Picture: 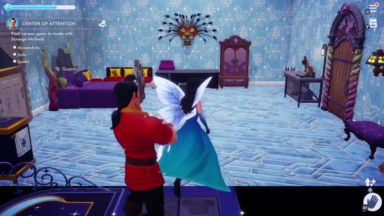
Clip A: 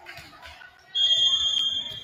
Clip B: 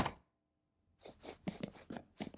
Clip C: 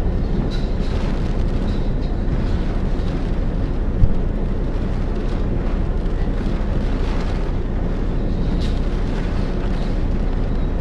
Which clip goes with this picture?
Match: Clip B